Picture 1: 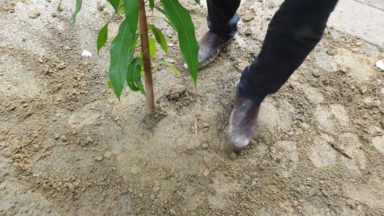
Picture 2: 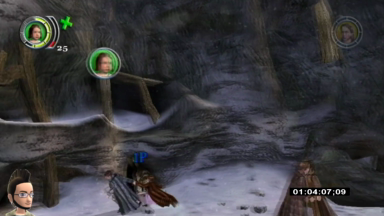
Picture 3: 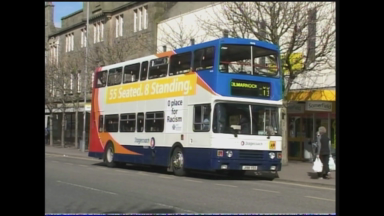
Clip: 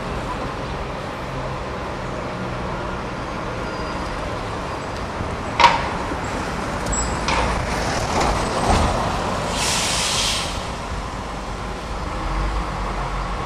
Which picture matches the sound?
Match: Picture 3